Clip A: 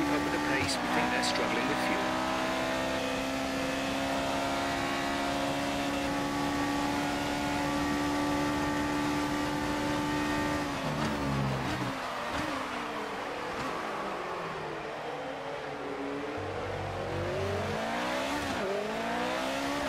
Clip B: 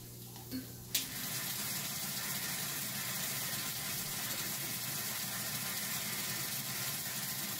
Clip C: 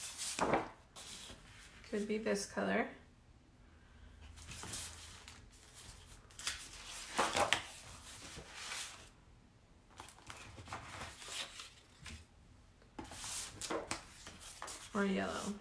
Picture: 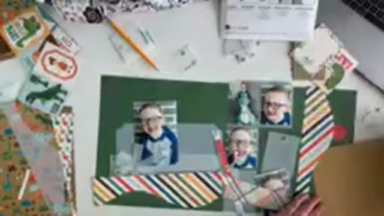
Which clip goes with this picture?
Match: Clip C